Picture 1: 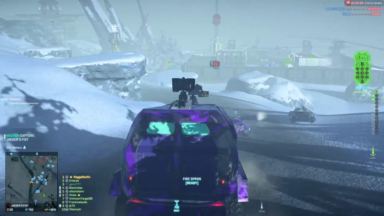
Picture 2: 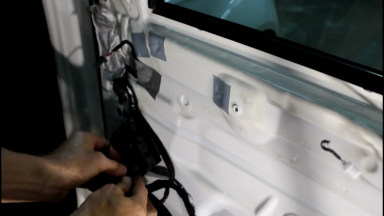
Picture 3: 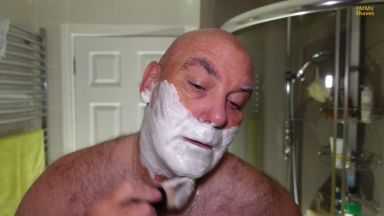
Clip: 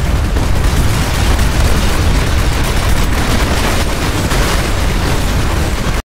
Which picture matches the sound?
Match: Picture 1